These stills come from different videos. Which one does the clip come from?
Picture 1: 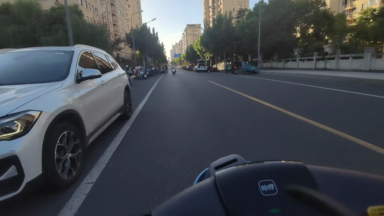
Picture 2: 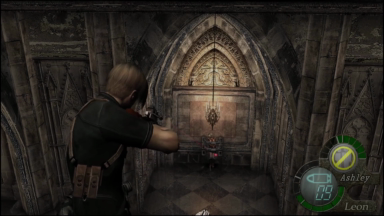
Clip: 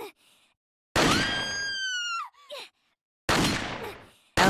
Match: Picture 2